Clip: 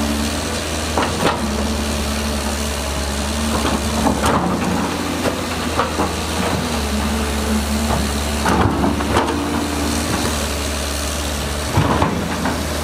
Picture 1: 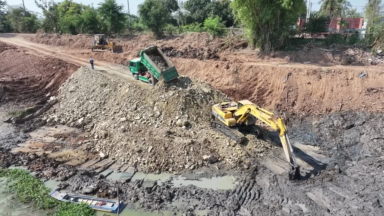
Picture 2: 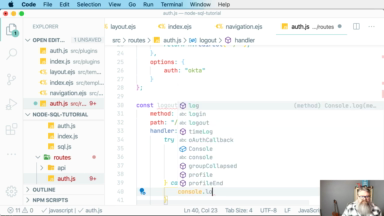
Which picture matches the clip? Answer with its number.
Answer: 1